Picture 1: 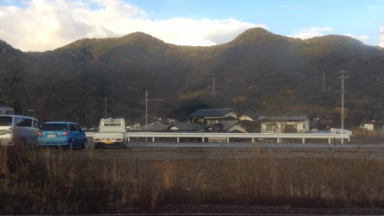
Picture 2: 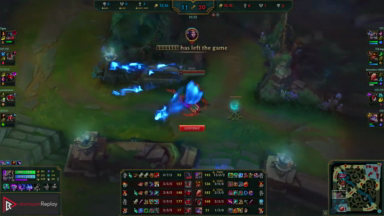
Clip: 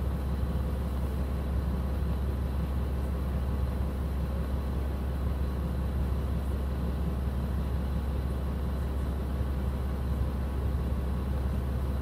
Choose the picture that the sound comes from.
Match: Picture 1